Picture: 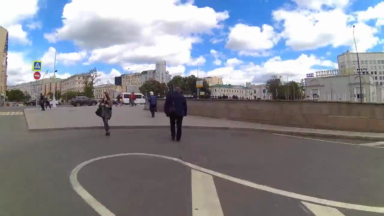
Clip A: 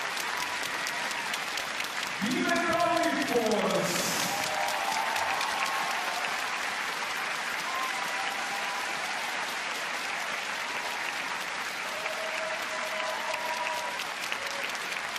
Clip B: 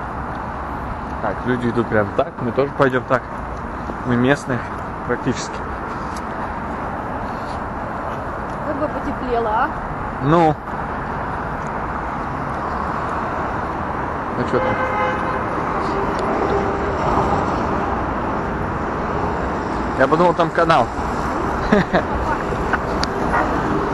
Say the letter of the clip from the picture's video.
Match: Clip B